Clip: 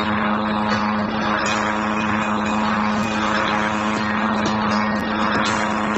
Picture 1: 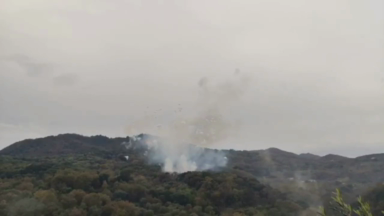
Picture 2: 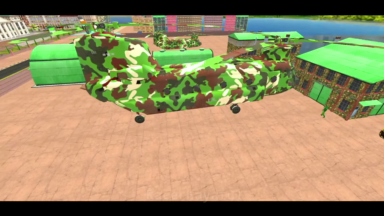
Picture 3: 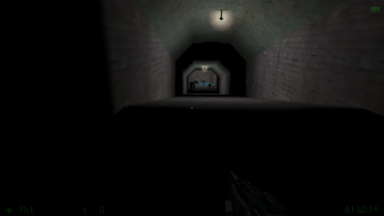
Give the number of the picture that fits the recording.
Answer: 2